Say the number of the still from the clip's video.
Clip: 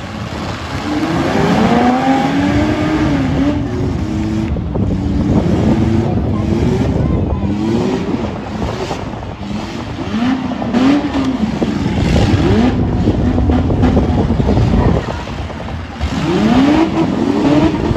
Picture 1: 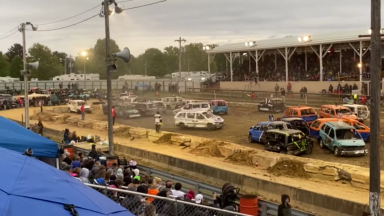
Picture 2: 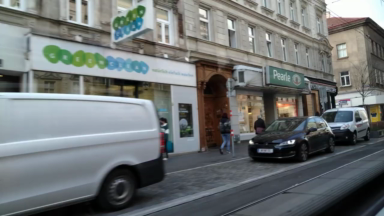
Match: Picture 1